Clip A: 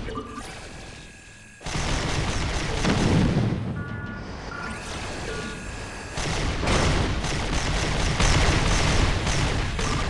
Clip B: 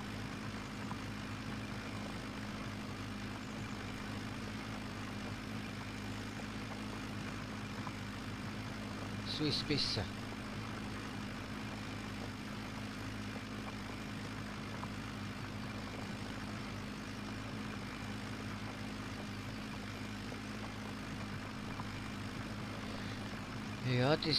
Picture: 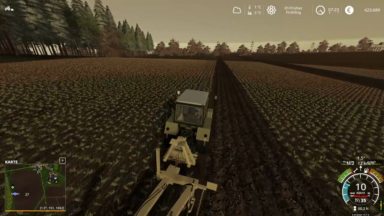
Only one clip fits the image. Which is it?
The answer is B